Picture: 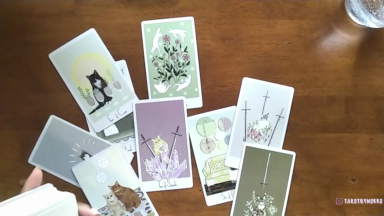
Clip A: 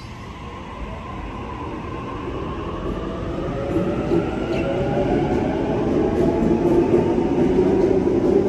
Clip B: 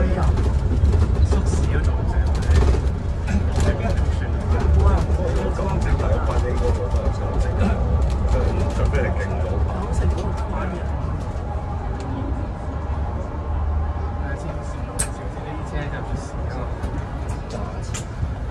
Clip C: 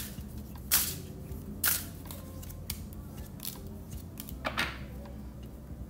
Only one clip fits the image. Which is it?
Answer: C